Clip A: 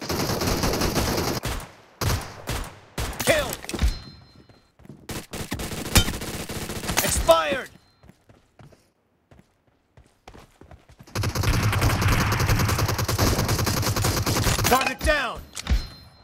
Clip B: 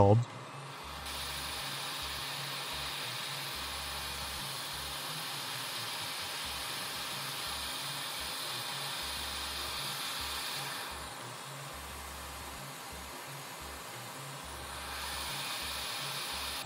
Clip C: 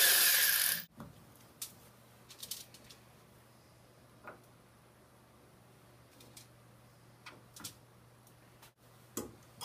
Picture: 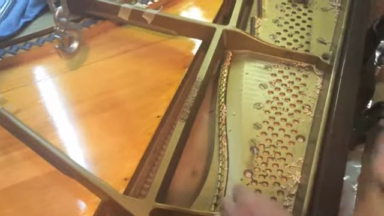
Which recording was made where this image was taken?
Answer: C